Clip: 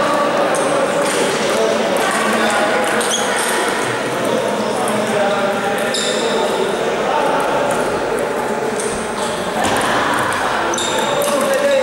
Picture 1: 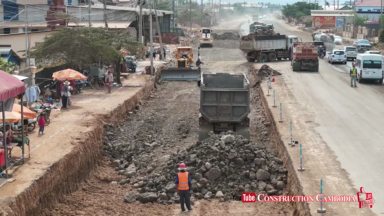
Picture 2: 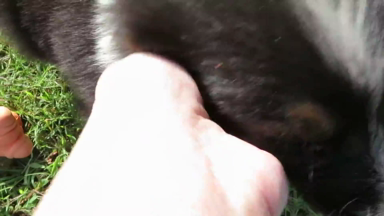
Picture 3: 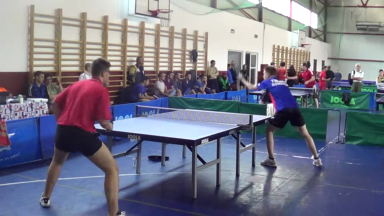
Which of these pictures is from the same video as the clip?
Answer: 3